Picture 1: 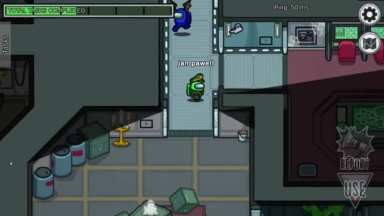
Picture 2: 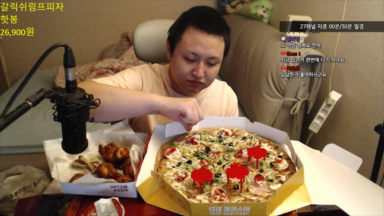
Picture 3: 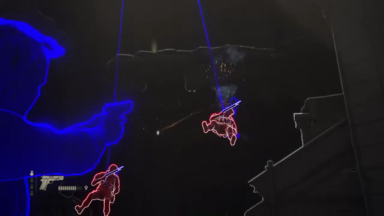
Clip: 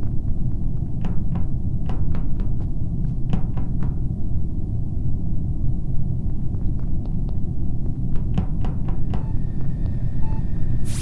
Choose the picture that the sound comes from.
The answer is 1